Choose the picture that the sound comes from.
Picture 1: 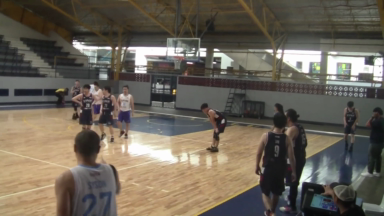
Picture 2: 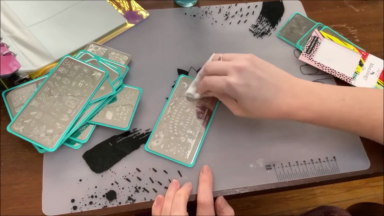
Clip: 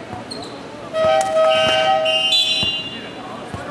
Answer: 1